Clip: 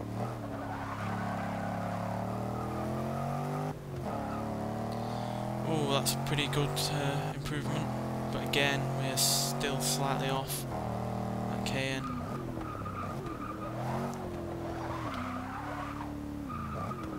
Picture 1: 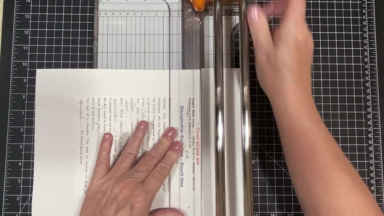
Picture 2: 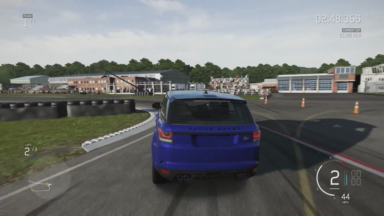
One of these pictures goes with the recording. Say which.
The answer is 2